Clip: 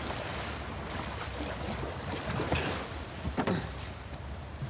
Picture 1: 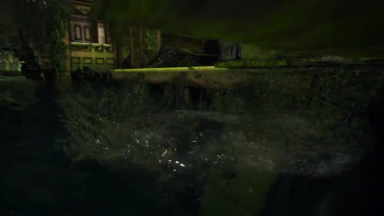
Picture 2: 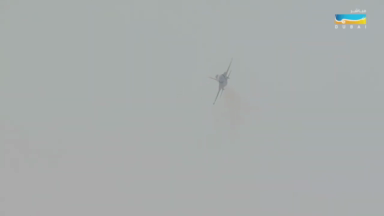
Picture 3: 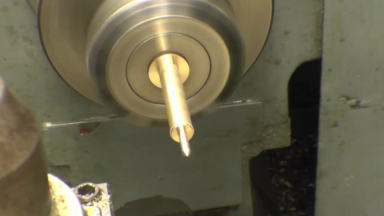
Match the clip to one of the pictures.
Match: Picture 1